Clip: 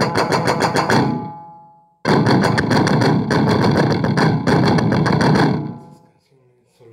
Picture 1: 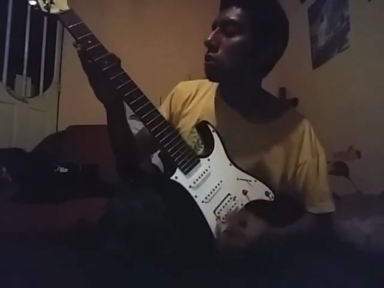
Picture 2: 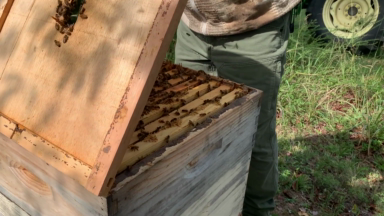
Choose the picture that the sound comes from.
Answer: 1